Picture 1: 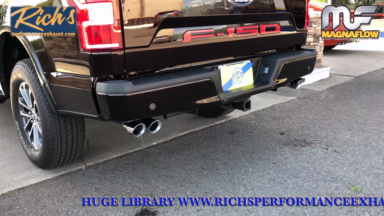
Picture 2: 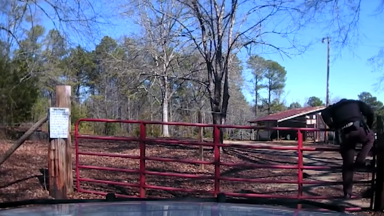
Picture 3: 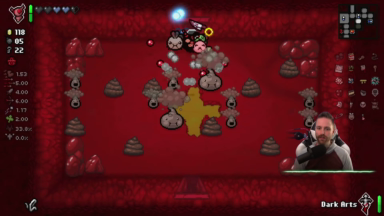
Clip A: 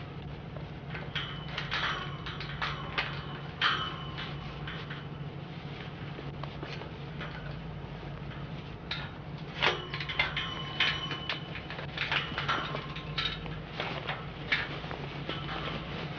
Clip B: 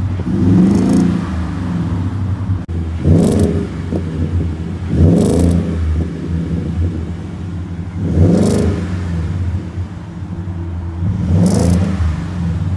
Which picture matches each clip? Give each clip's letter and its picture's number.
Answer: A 2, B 1